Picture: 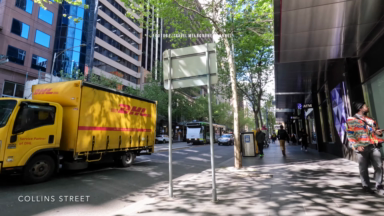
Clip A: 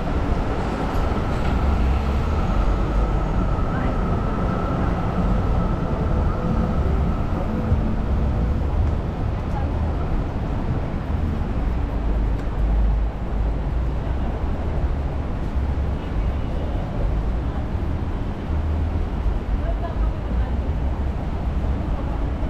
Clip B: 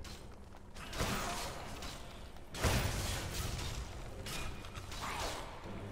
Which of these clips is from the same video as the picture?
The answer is A